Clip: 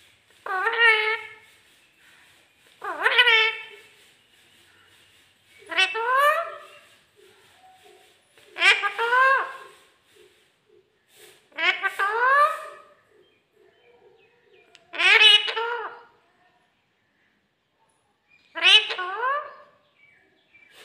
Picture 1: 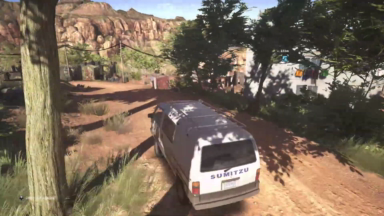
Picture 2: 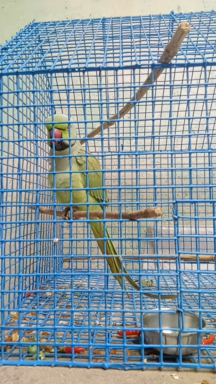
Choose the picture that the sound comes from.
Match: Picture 2